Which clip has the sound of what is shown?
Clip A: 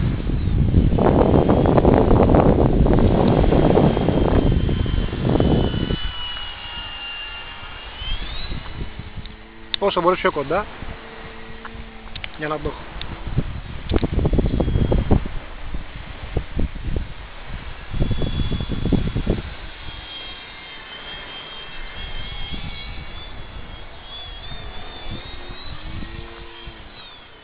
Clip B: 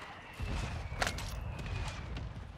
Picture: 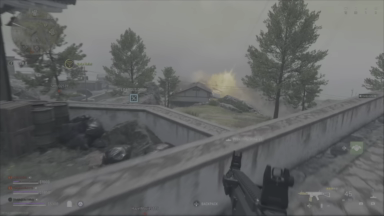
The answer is B